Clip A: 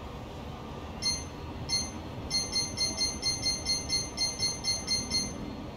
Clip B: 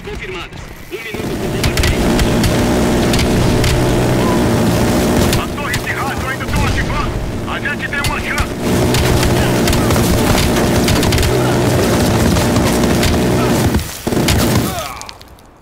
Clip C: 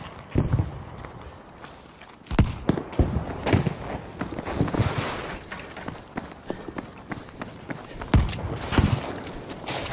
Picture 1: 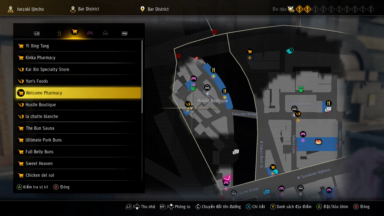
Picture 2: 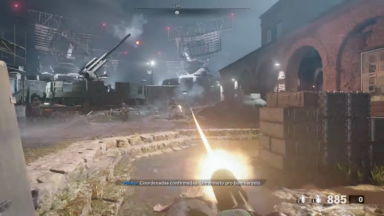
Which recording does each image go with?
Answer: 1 A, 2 B